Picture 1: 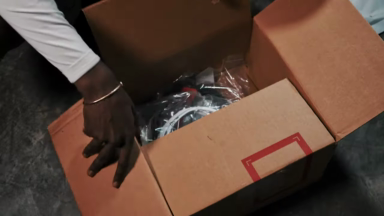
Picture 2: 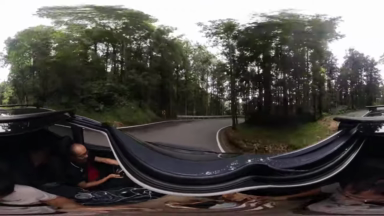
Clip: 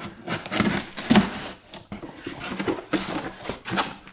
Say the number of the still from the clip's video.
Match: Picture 1